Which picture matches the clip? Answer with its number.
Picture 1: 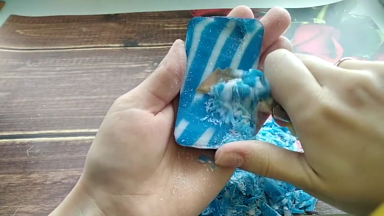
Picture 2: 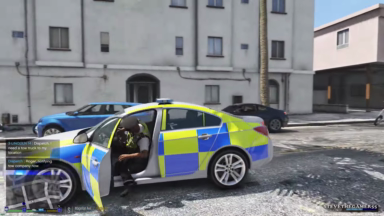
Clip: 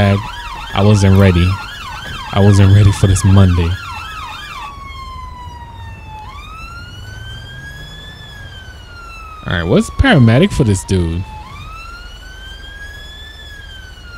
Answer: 2